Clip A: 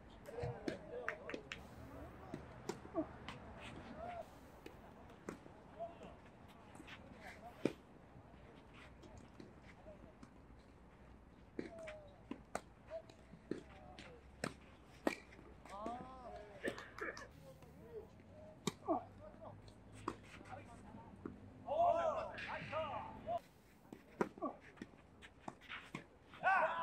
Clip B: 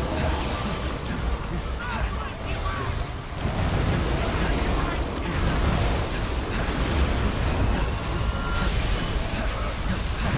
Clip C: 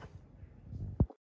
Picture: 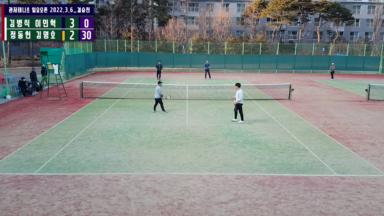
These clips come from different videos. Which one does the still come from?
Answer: A